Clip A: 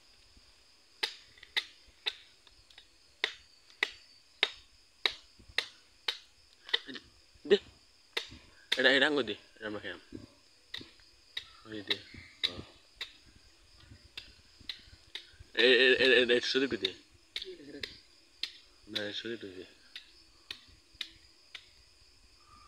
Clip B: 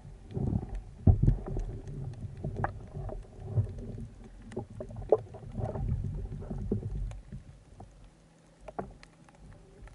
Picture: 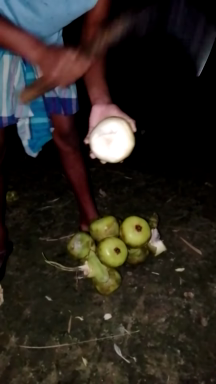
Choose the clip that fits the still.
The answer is A